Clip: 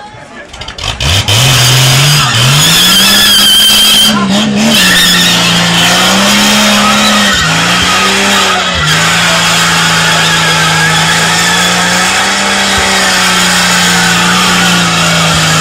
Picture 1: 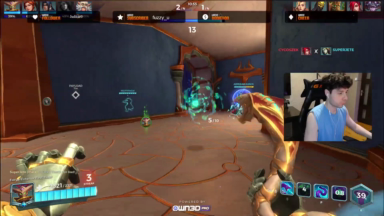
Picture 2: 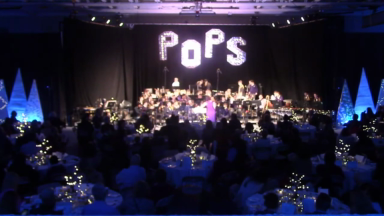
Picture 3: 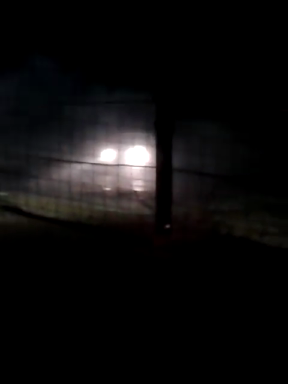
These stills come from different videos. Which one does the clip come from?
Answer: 3